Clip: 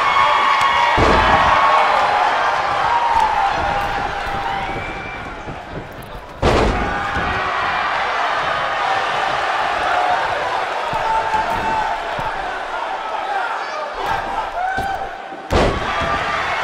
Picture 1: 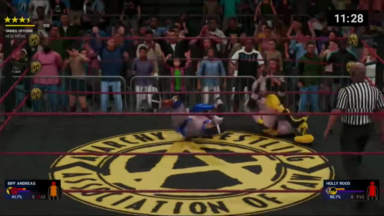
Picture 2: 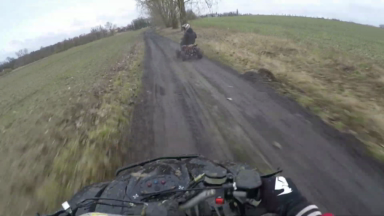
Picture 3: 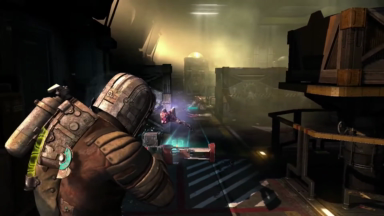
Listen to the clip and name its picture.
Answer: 1